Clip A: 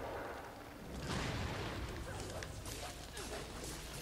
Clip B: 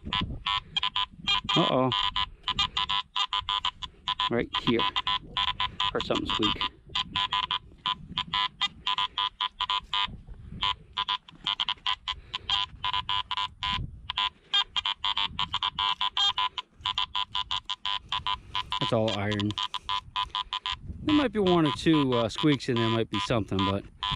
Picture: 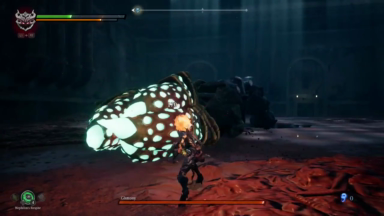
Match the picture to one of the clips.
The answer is A